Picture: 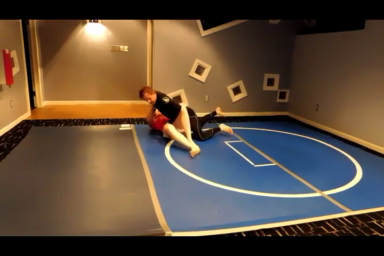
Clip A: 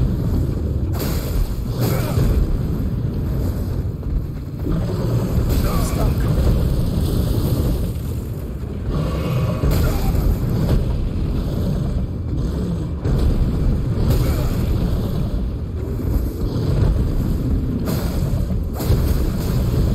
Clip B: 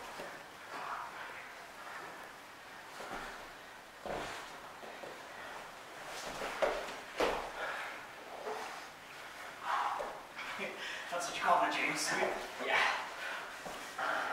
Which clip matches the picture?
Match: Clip B